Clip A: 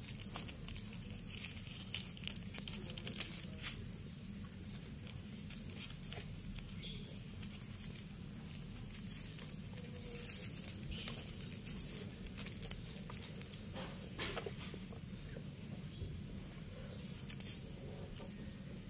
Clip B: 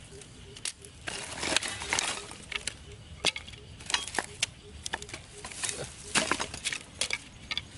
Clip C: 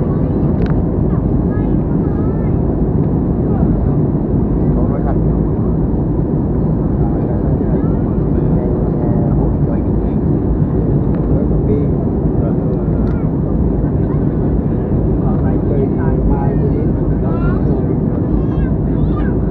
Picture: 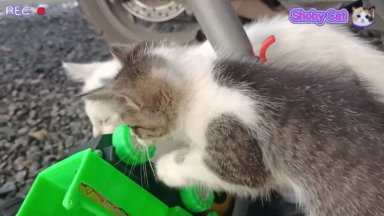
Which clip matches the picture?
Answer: A